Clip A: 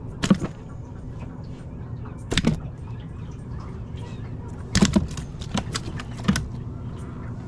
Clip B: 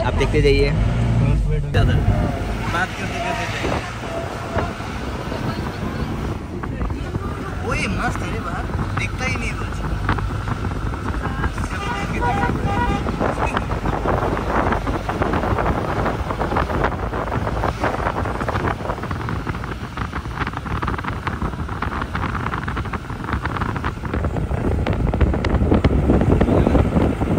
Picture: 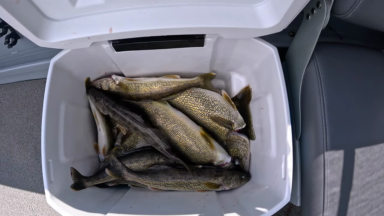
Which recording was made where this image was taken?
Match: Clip A